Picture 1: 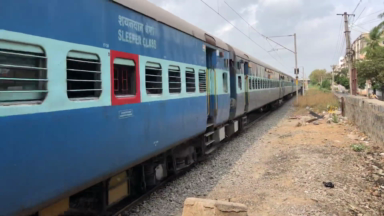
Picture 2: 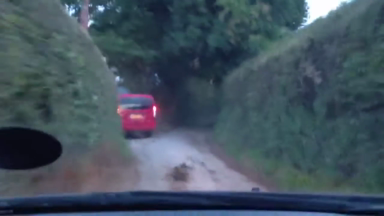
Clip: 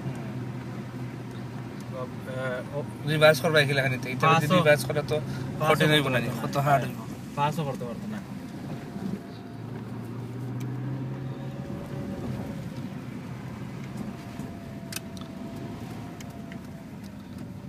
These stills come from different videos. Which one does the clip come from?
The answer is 2